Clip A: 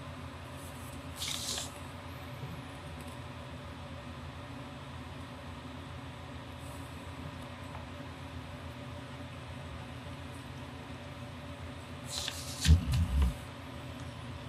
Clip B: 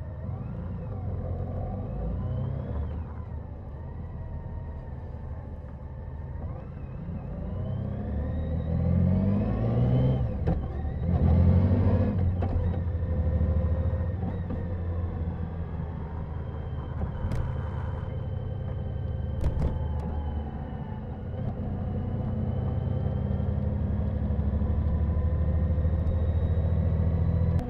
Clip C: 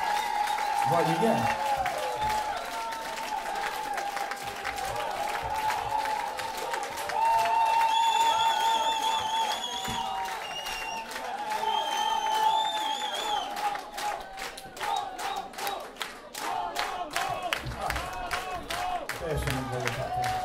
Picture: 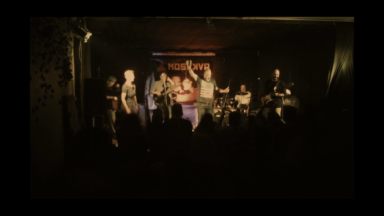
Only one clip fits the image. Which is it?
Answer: C